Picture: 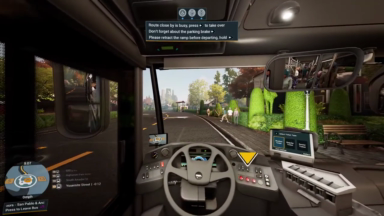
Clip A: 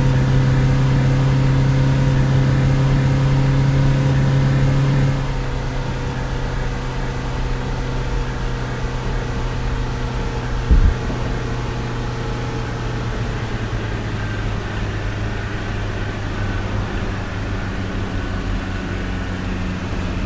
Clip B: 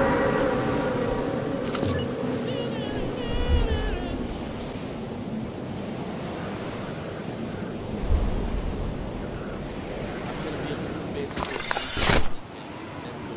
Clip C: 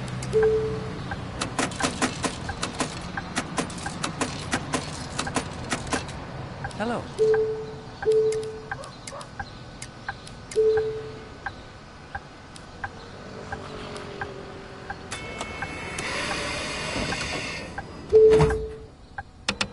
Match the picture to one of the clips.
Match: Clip C